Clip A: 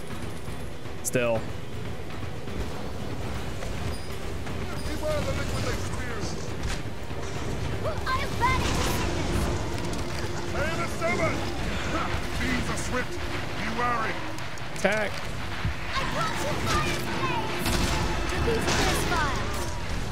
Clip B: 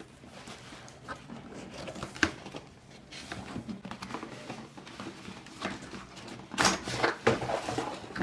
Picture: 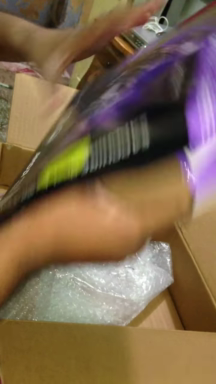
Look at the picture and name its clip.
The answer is B